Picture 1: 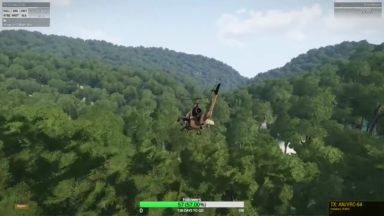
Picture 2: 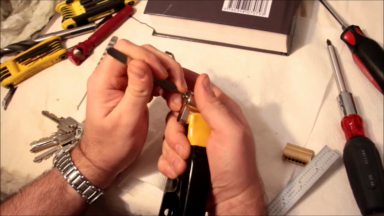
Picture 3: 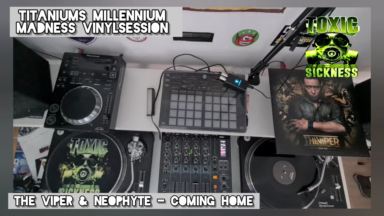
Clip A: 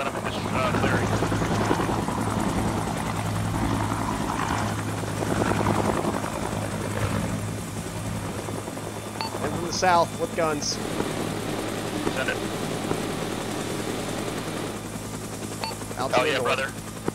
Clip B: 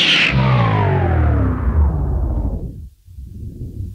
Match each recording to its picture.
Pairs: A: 1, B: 3